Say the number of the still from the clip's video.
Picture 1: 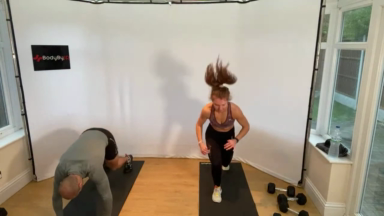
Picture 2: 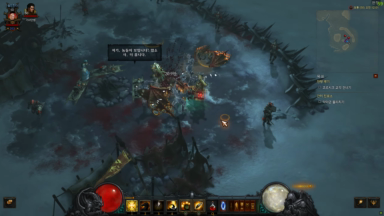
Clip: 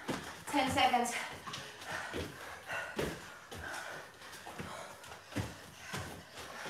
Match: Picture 1